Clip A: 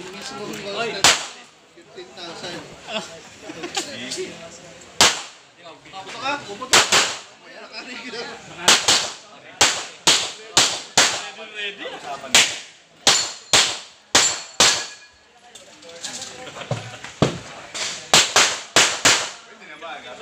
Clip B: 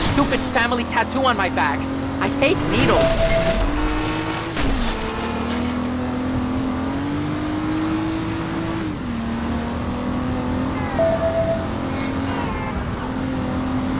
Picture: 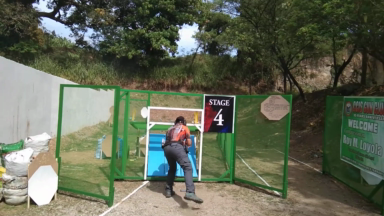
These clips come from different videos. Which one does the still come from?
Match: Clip A